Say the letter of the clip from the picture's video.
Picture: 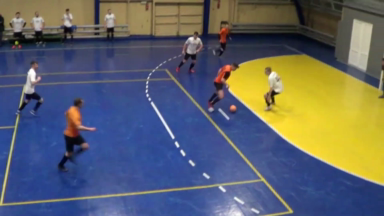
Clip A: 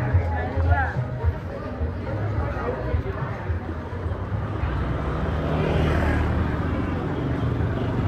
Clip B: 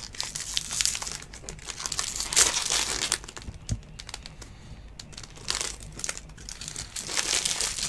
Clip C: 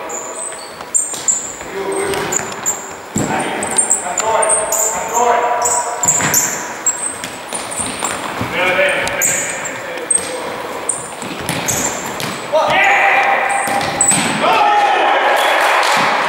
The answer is C